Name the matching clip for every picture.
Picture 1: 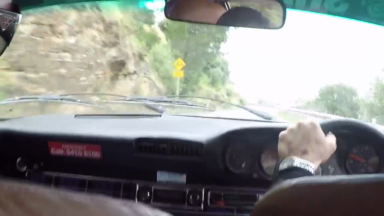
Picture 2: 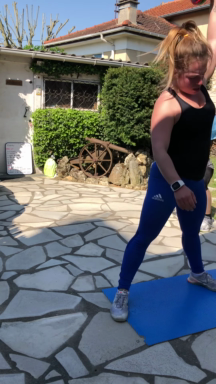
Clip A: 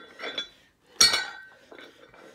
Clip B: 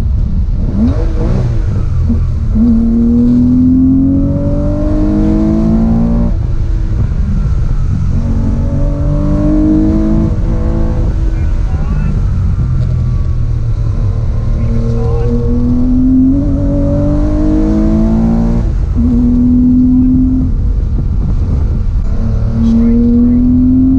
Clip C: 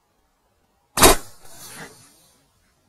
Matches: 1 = B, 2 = A